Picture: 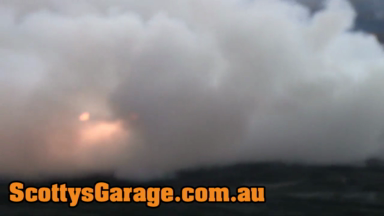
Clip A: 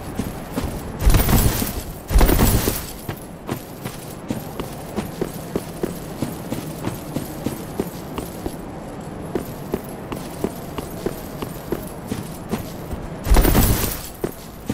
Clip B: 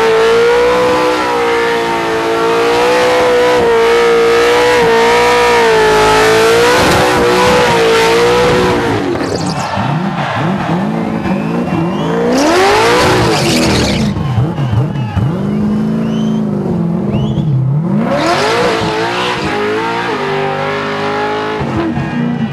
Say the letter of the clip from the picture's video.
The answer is B